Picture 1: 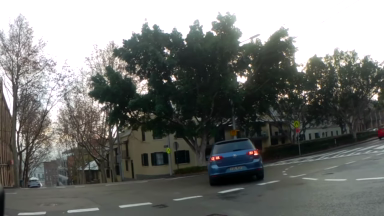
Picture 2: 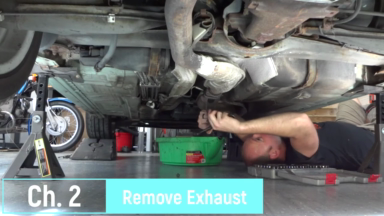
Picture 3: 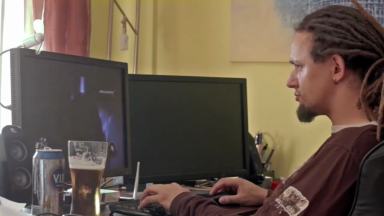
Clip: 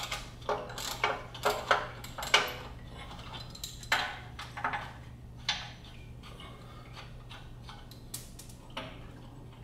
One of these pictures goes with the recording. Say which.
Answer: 2